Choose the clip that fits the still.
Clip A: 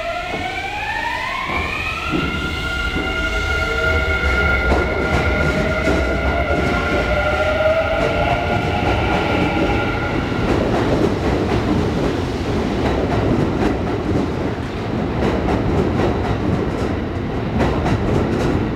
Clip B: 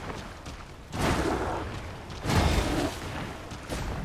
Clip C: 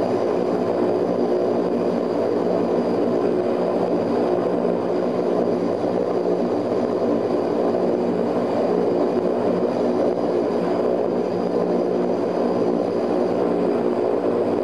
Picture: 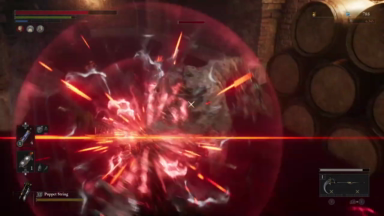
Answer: B